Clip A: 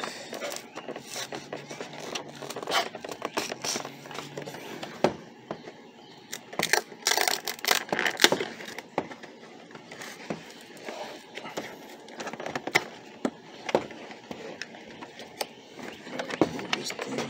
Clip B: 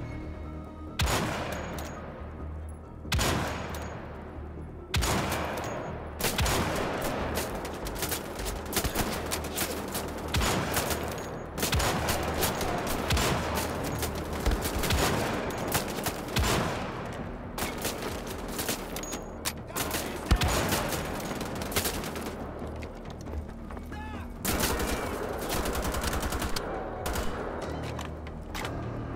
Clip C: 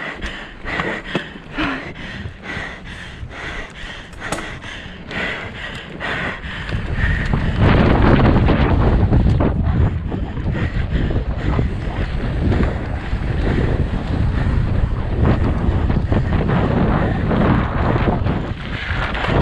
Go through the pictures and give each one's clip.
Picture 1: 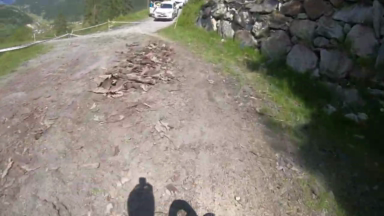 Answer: C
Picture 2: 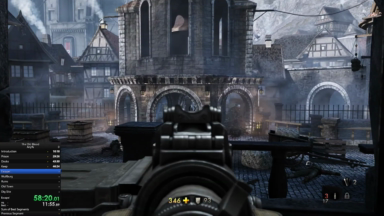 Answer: B